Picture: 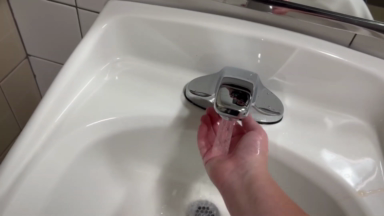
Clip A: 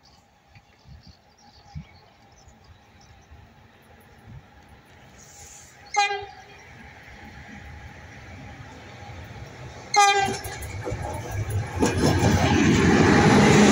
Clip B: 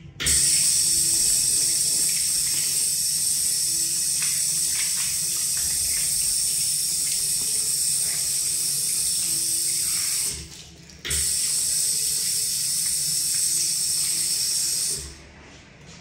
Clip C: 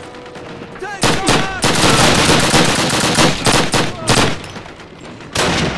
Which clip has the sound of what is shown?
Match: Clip B